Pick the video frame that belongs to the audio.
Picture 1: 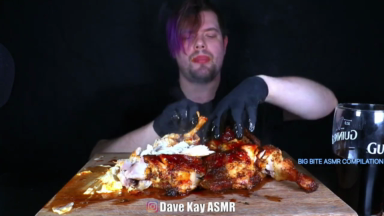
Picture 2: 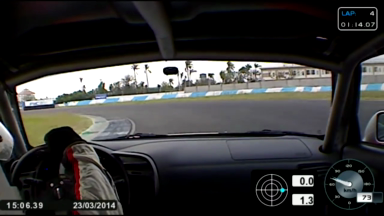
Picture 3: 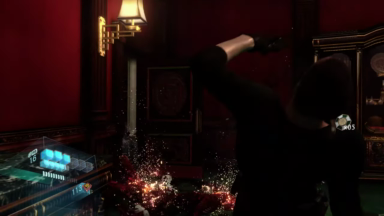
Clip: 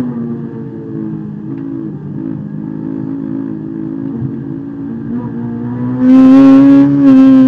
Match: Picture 2